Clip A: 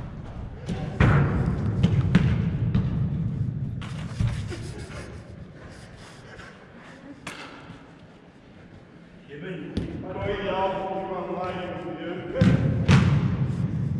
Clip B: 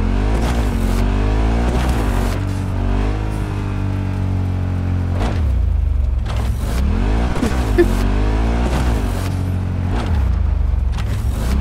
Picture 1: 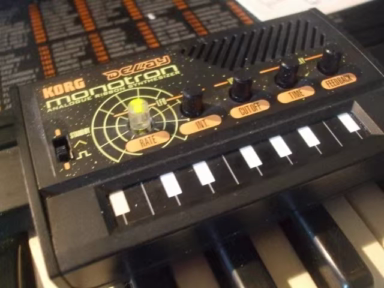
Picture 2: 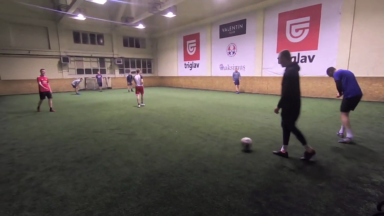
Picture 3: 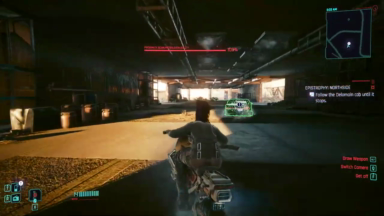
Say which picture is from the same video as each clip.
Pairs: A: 2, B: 3